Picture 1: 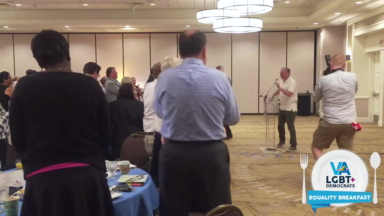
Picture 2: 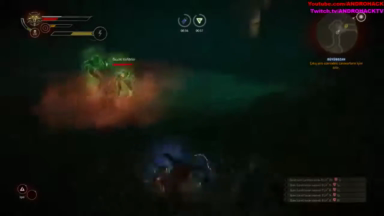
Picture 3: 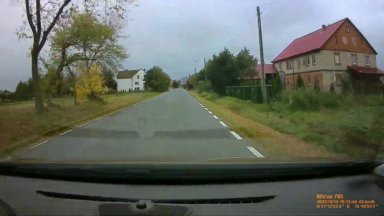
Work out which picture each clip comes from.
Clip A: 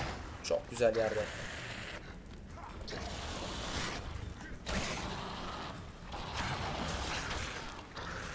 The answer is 2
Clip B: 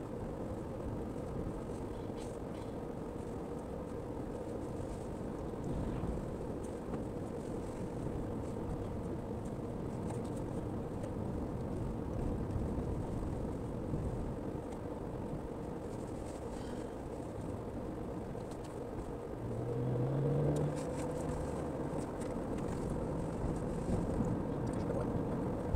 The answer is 3